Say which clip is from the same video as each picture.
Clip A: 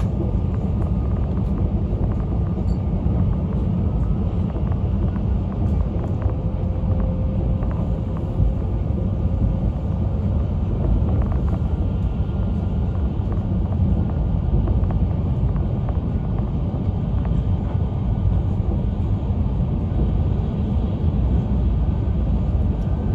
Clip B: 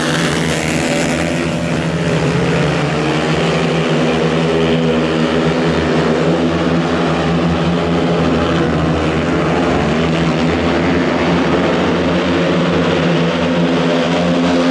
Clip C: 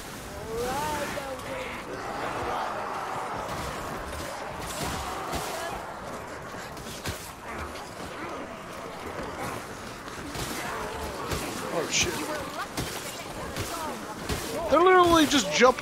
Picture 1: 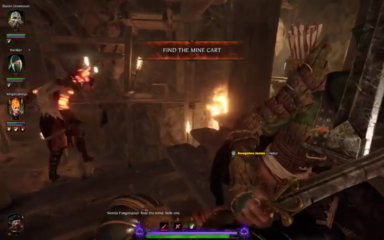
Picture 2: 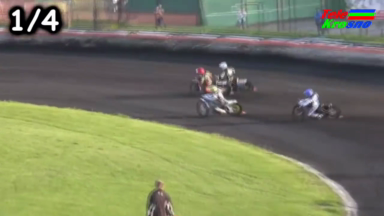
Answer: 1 C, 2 B